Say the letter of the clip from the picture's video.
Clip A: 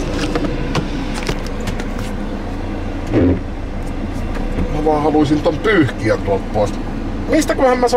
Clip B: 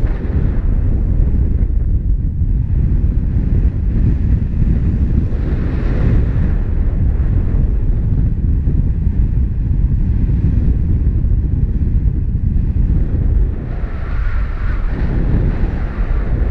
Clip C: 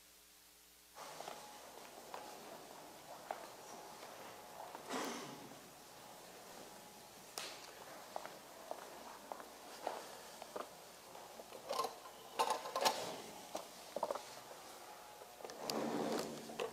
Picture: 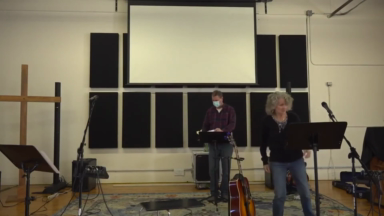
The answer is C